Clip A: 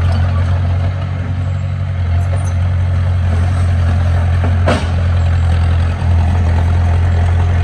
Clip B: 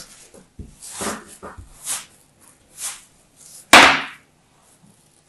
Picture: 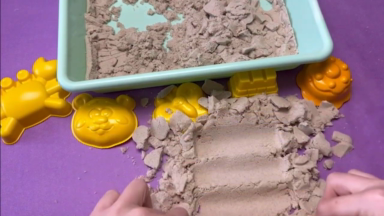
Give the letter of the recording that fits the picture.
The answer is B